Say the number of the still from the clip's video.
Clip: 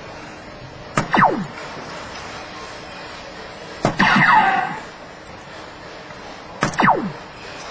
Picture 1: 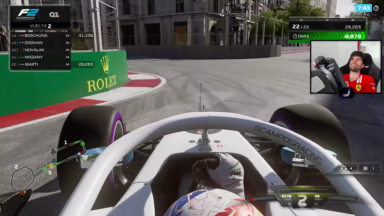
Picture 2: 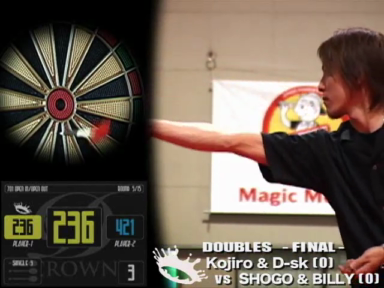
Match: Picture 2